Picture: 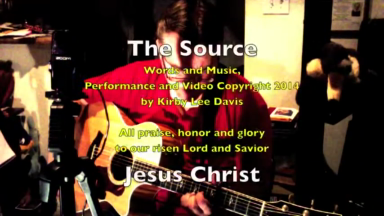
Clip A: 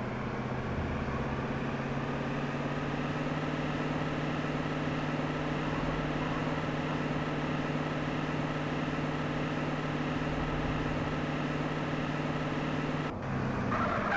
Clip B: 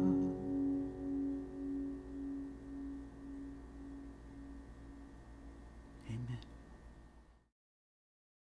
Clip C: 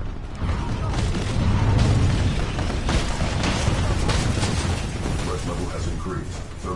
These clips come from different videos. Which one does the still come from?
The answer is B